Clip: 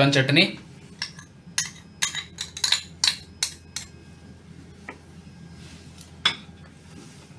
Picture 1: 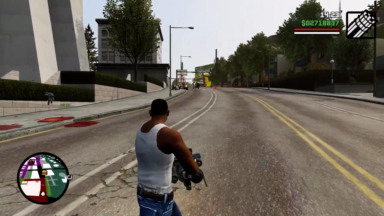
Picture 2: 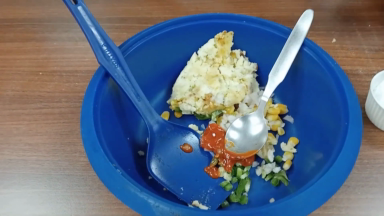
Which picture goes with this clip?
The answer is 2